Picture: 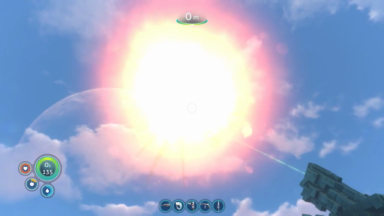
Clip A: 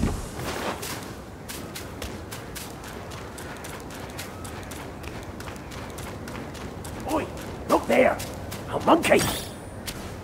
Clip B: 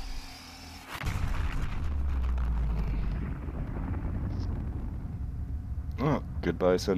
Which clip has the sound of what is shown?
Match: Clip B